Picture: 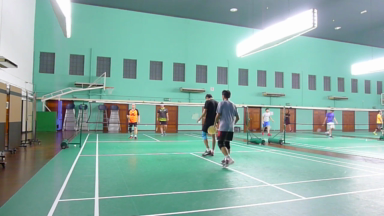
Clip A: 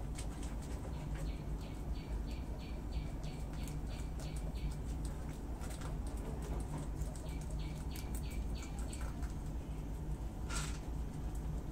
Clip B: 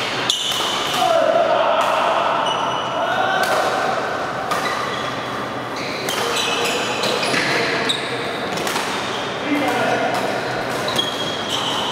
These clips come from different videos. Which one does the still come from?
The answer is B